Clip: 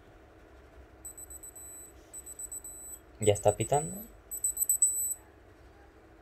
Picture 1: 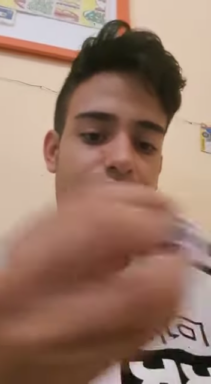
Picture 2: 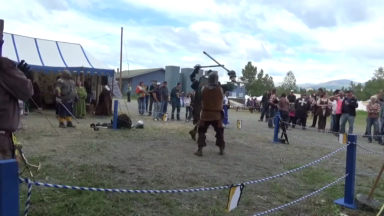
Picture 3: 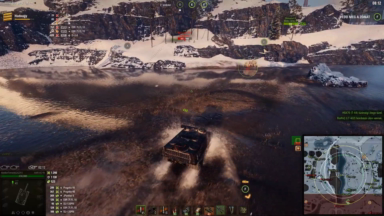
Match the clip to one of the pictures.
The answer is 1